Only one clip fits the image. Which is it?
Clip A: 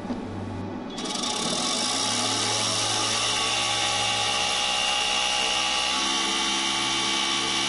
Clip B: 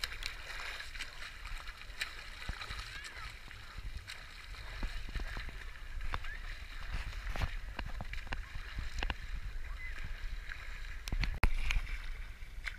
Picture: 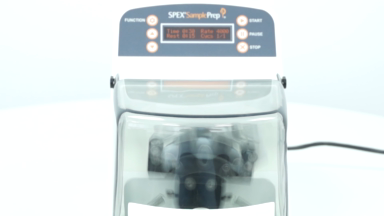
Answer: A